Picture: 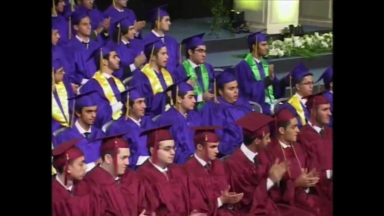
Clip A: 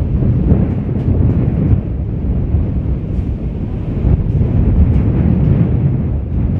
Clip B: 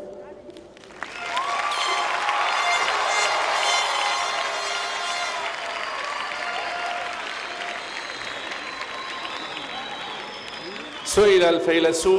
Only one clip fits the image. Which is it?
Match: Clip B